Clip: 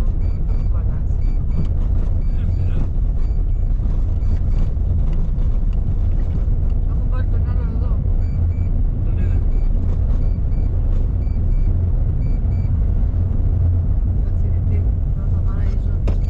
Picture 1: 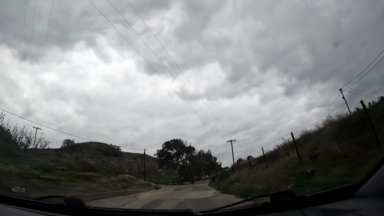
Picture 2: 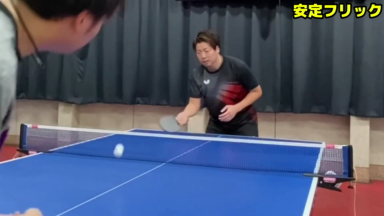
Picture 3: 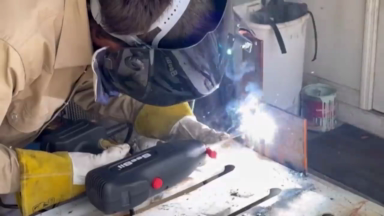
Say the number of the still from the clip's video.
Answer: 1